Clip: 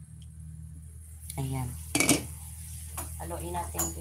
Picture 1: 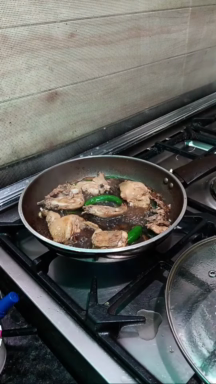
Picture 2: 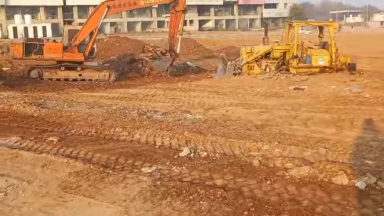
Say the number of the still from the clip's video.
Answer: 1